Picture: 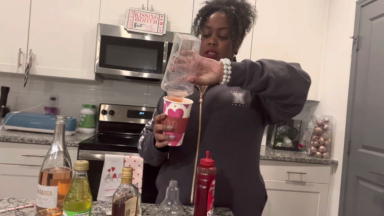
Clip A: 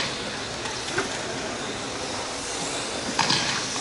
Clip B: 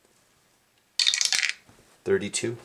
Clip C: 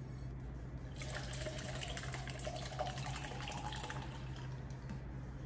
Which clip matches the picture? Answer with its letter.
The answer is C